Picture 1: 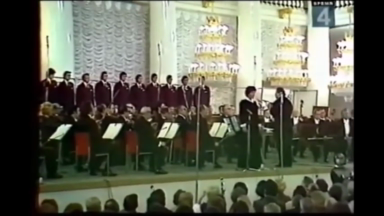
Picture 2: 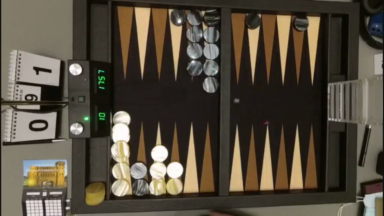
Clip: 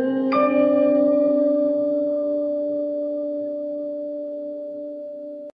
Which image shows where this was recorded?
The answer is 1